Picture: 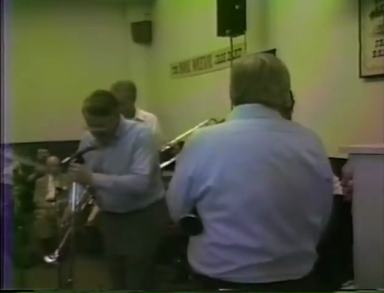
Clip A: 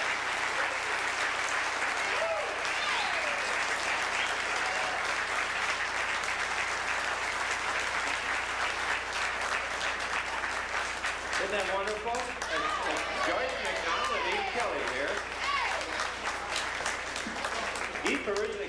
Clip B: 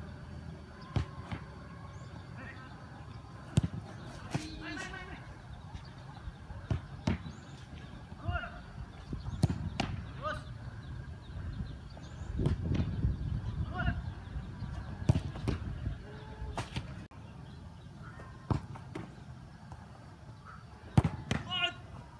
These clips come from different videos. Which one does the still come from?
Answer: A